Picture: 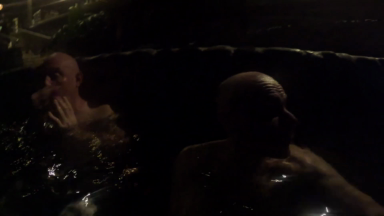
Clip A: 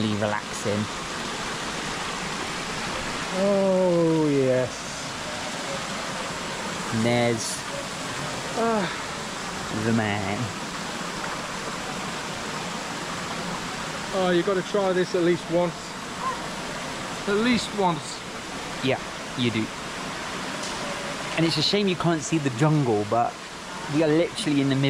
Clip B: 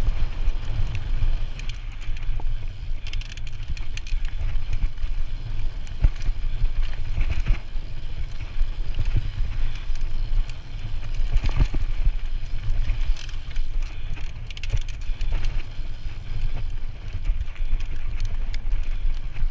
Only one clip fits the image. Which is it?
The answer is A